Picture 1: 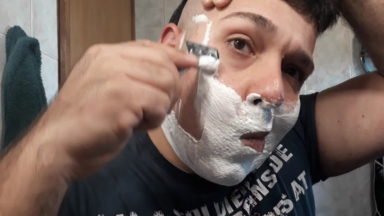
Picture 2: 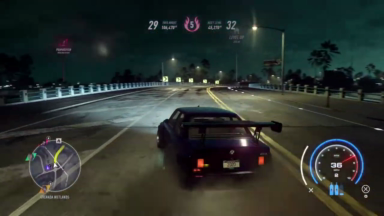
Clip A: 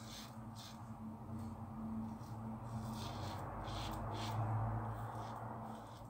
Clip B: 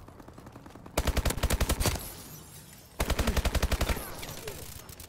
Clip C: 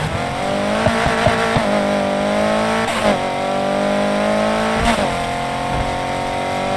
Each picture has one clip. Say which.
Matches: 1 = A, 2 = C